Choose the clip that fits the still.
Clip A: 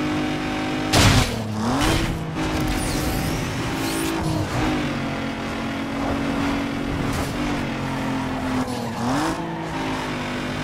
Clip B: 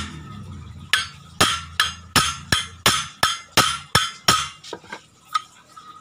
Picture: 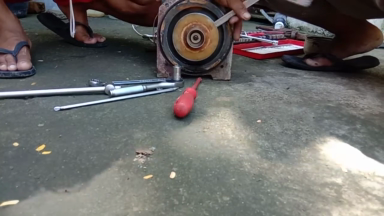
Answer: B